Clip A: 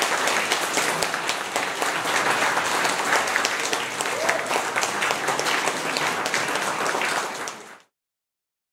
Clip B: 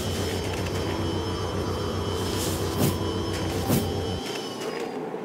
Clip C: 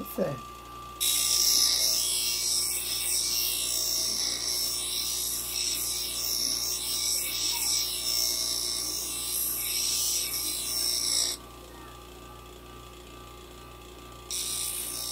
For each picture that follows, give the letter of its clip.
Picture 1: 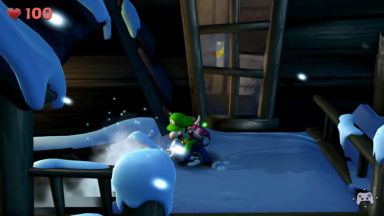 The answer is B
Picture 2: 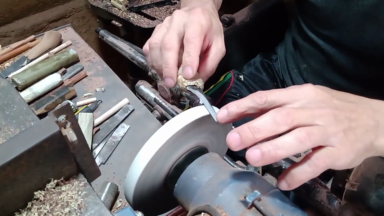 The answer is C